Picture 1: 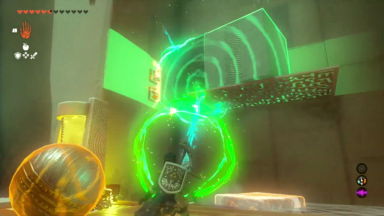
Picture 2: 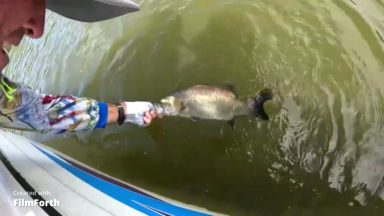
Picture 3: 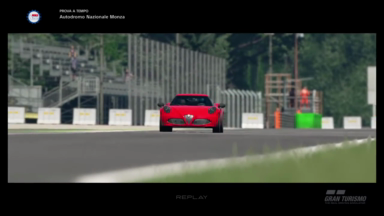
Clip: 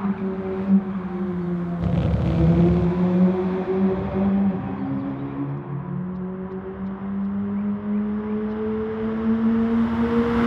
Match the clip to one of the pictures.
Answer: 3